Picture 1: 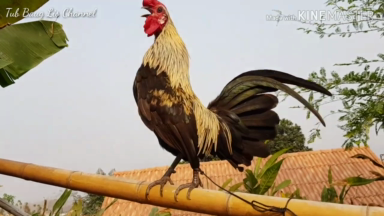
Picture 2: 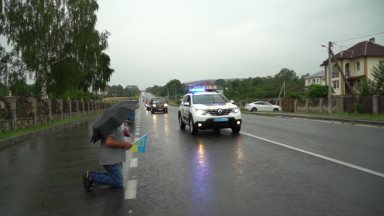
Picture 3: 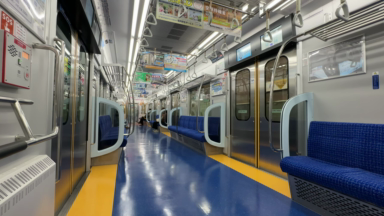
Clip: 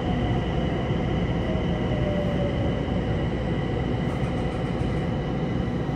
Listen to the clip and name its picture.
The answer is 3